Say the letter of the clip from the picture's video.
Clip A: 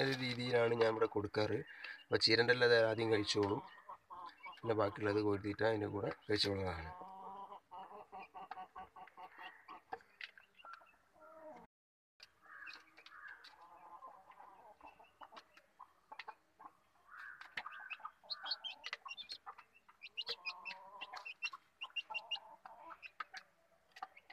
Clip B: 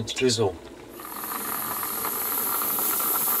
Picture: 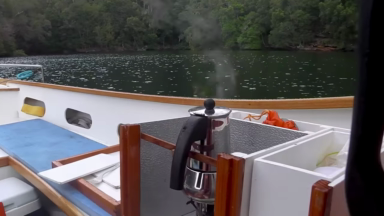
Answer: B